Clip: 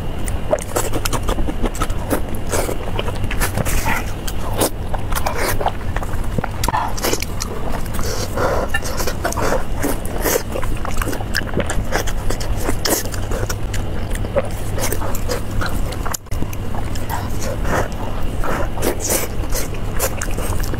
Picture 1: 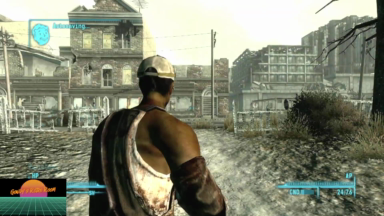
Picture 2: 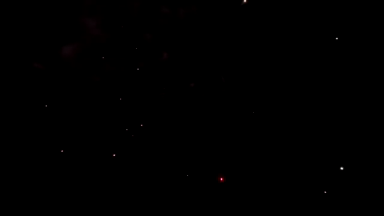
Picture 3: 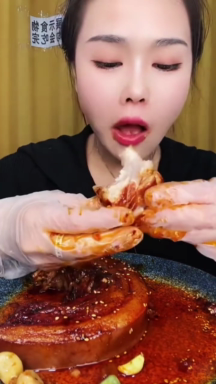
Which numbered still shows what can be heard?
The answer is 3